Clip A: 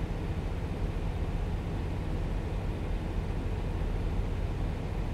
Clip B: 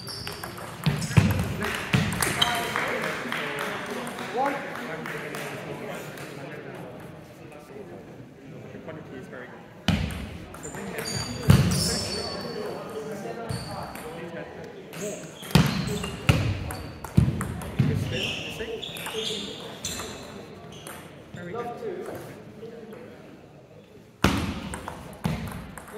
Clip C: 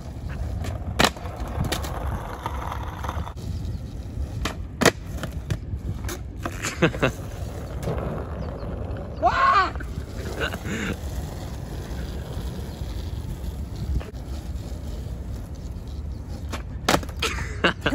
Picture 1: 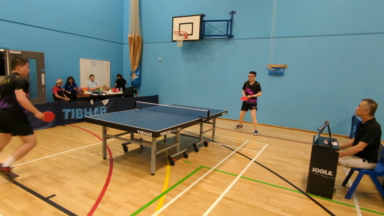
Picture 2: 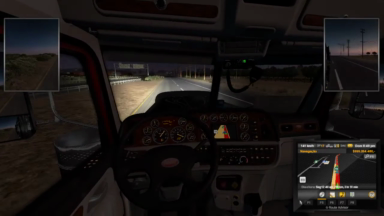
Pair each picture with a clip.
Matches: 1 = B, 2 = A